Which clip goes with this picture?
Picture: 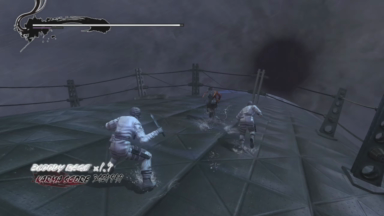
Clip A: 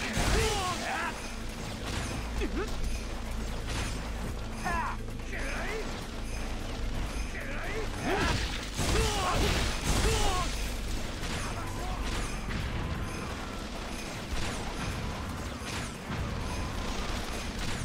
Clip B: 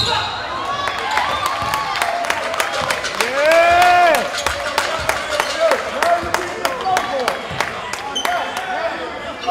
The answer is A